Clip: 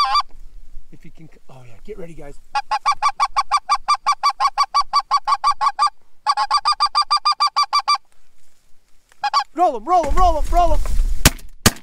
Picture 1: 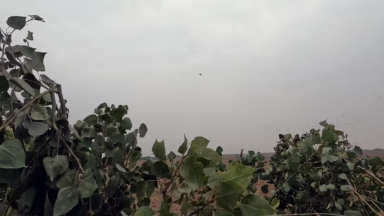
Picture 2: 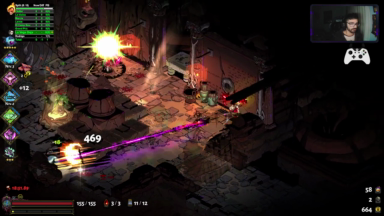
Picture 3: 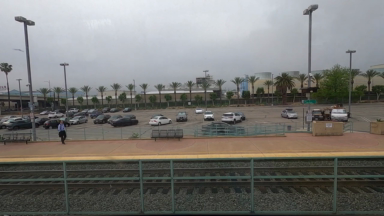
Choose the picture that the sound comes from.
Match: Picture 1